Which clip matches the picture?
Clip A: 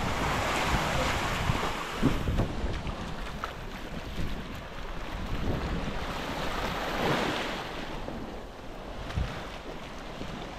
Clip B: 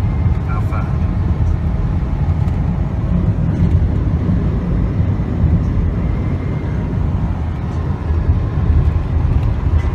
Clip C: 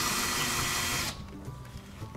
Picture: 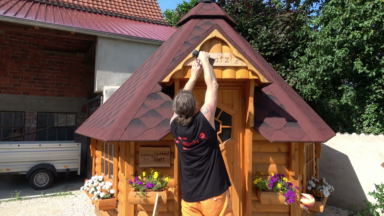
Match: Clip C